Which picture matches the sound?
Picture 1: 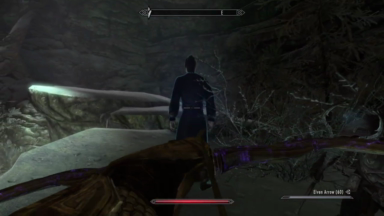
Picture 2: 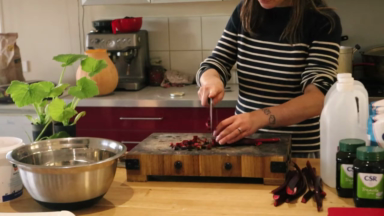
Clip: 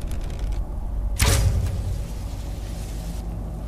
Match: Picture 1